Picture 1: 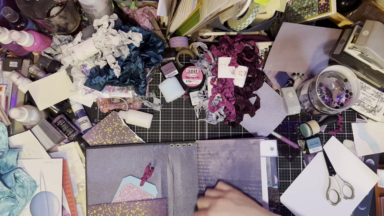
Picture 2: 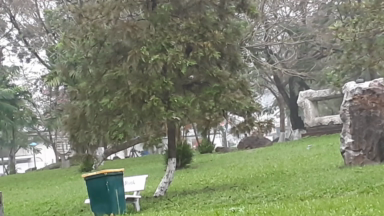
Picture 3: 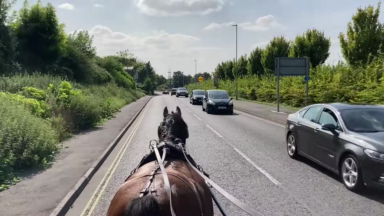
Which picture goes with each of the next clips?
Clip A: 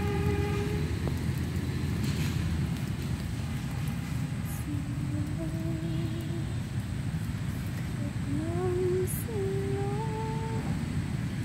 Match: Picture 2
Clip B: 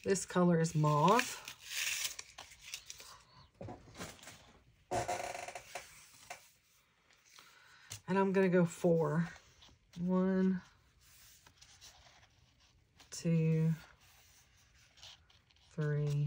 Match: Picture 1